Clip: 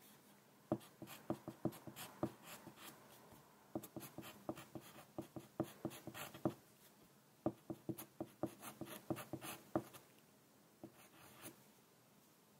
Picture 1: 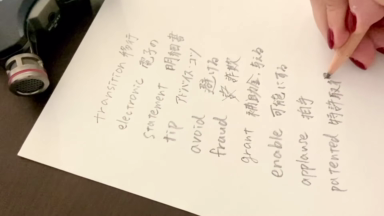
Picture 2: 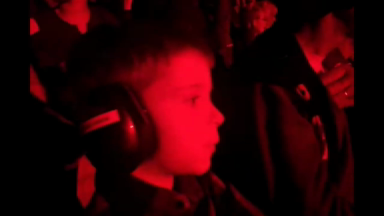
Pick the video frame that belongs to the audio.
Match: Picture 1